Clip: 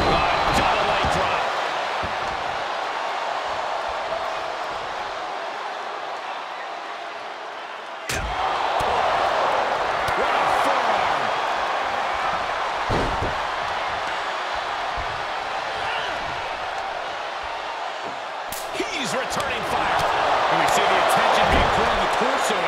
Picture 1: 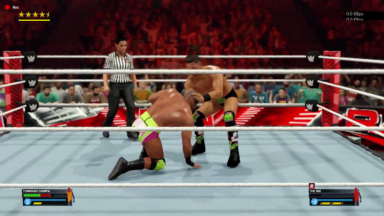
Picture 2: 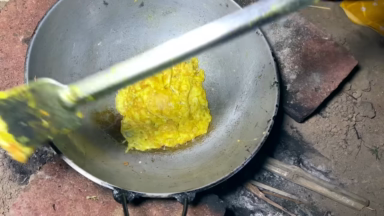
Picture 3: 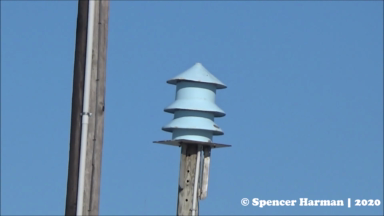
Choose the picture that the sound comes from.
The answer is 1